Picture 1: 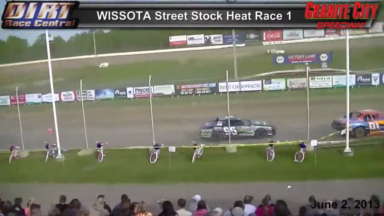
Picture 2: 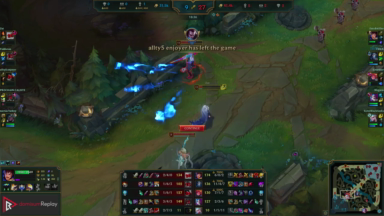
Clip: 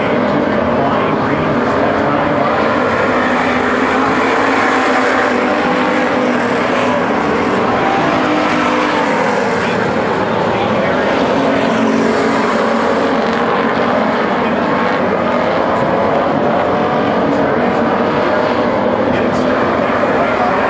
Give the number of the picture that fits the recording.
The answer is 1